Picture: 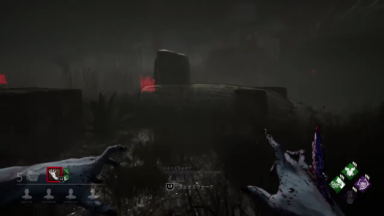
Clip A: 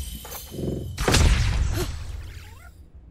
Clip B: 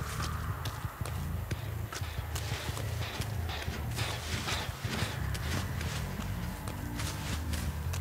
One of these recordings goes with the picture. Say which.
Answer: B